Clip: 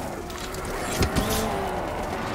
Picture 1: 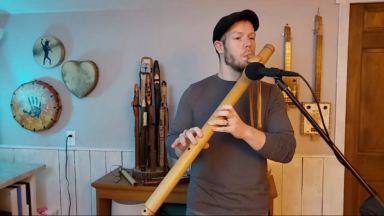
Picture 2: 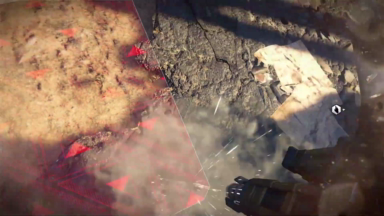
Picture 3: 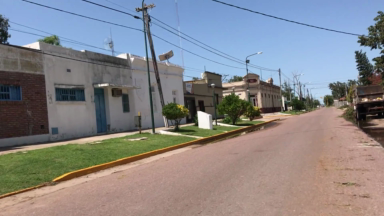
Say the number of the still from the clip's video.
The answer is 2